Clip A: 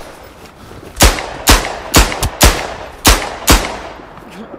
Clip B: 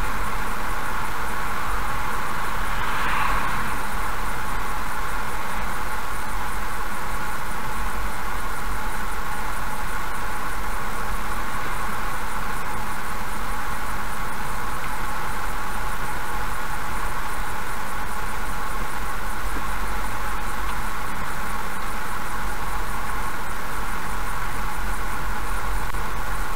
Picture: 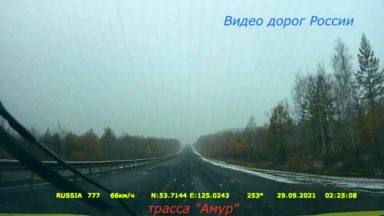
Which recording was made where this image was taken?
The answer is B